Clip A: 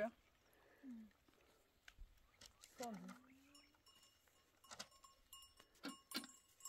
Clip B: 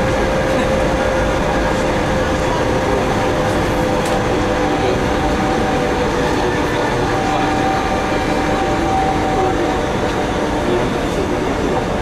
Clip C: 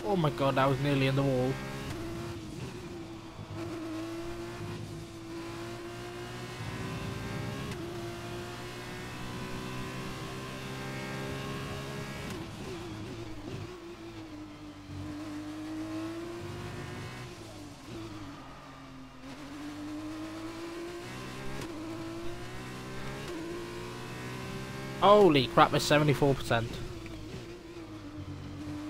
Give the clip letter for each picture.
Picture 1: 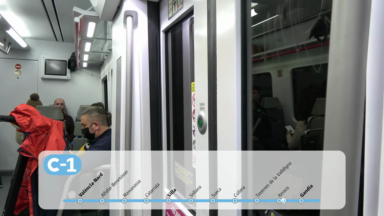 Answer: B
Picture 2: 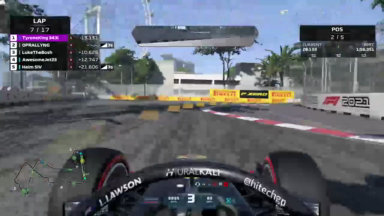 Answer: C